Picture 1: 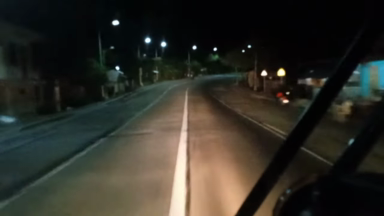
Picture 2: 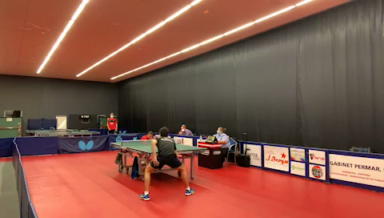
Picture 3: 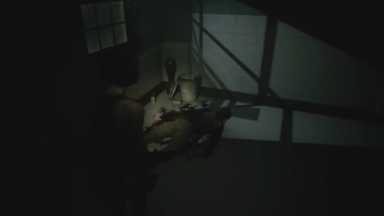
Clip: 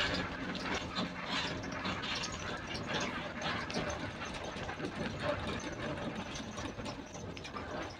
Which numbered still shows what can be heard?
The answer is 1